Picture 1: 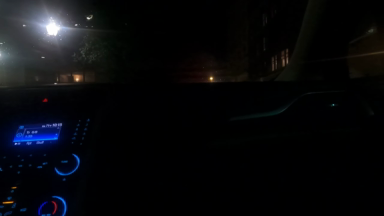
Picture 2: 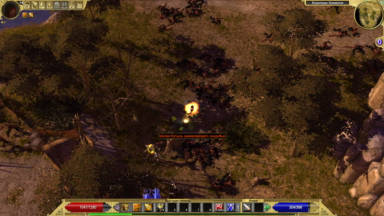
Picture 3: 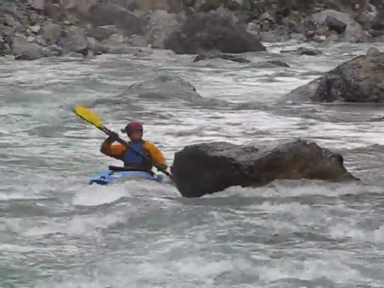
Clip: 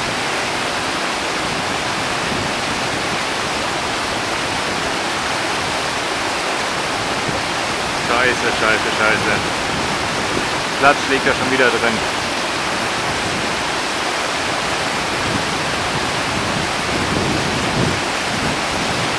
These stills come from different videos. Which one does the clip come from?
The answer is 3